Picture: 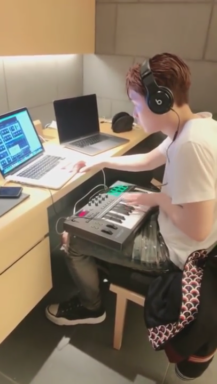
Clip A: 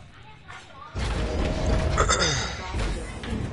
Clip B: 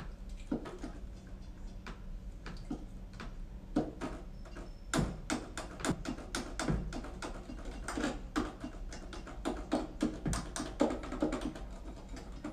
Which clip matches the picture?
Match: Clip B